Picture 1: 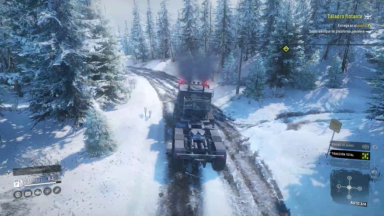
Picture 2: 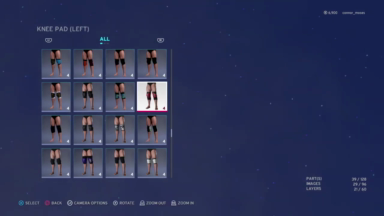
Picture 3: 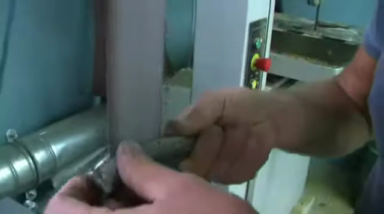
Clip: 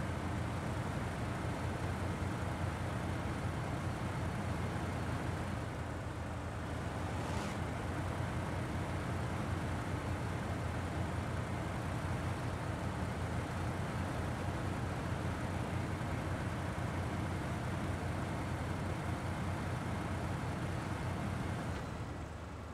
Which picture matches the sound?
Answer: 1